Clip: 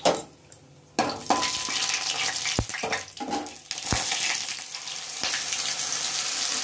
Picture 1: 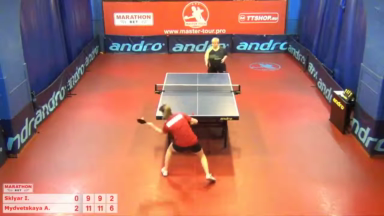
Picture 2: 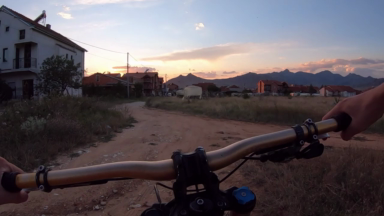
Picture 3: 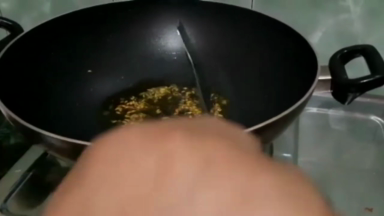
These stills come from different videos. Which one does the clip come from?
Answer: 3